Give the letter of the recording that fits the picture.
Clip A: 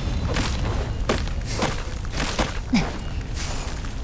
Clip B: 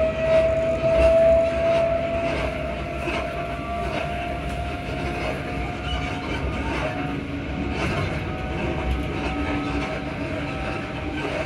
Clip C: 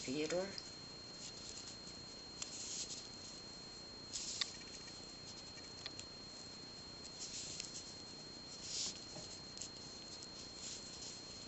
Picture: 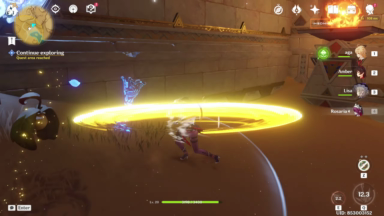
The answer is A